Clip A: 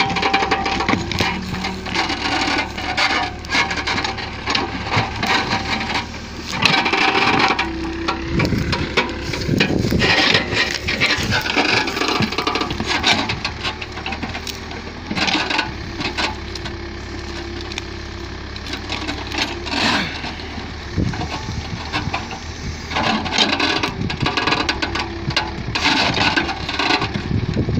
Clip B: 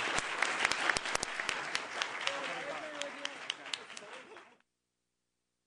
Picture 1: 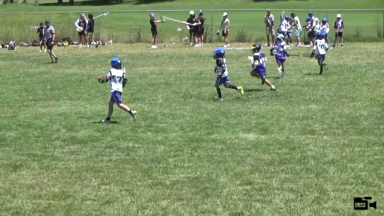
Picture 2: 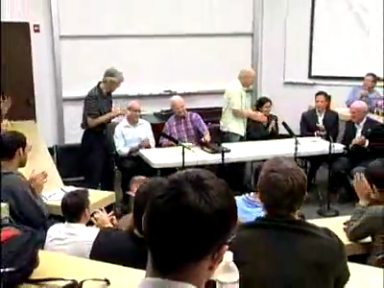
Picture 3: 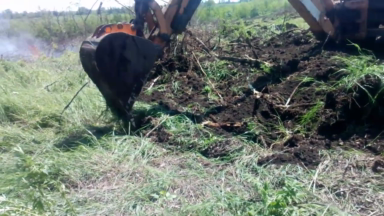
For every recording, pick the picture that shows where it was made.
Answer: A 3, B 2